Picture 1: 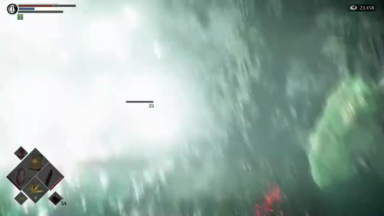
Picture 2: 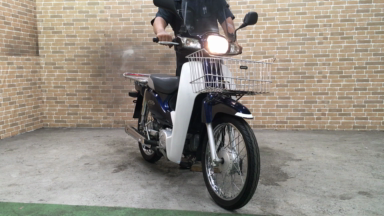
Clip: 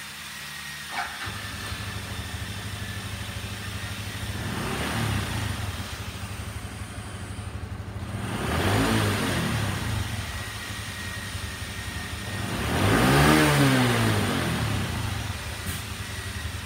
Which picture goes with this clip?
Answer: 2